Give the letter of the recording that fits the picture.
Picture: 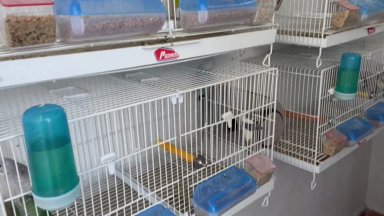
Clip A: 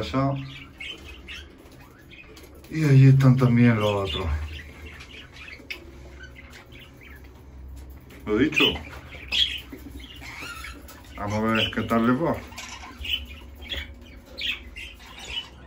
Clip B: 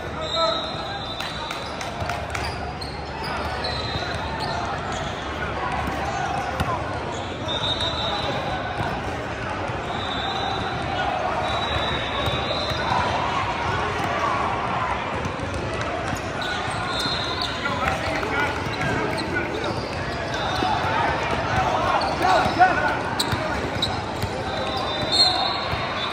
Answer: A